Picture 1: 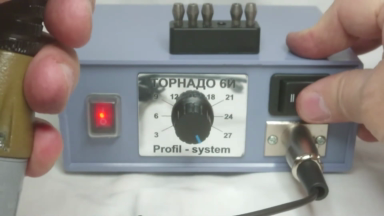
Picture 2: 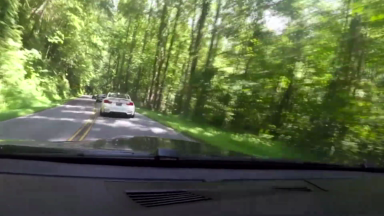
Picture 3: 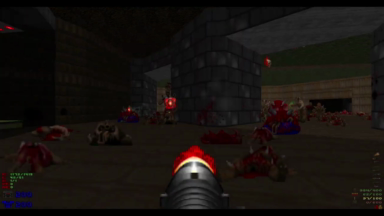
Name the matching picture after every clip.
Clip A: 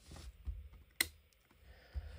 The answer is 1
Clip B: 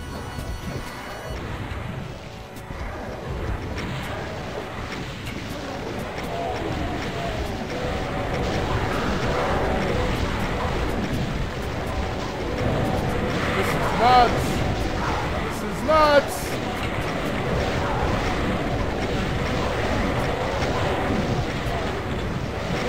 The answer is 3